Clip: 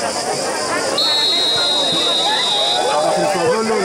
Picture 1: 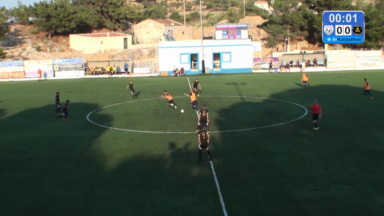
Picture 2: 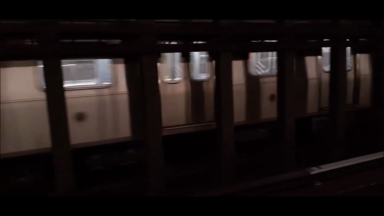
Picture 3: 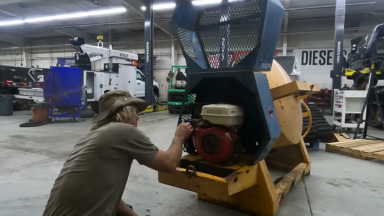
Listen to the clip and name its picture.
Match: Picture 1